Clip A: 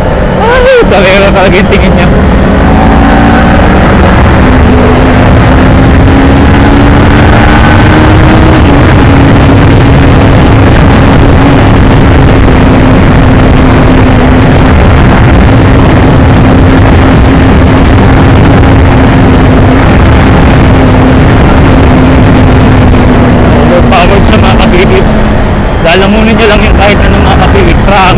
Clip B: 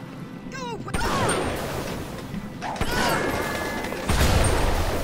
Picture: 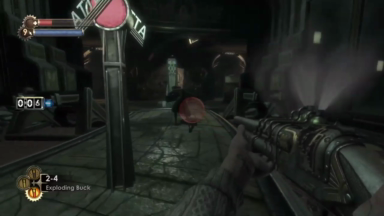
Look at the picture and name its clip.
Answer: B